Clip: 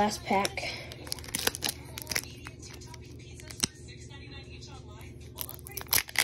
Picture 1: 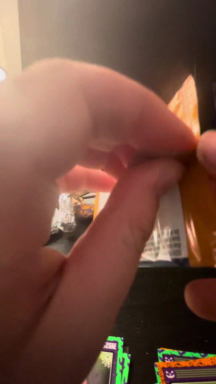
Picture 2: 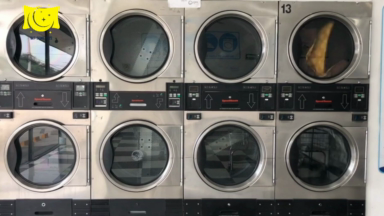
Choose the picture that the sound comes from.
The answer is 1